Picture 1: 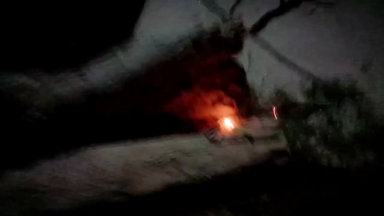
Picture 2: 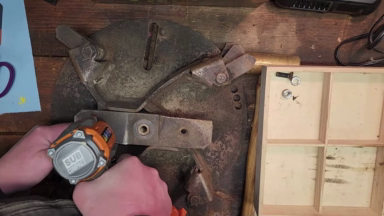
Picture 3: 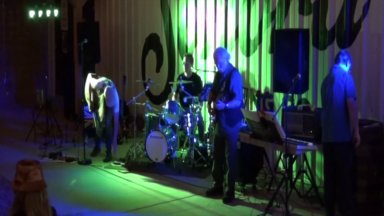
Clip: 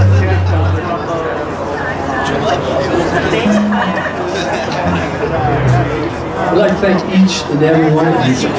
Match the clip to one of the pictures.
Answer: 3